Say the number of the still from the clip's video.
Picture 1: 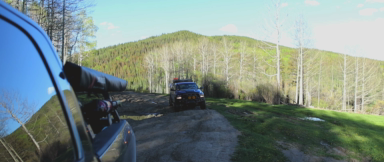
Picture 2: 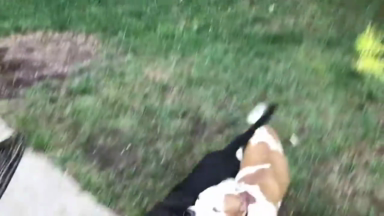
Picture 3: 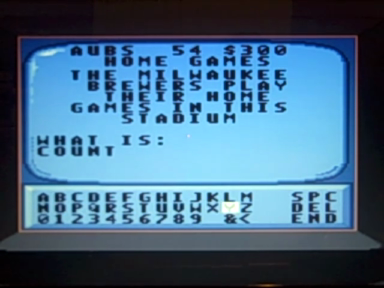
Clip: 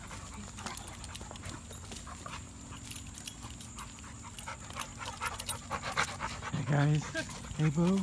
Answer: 2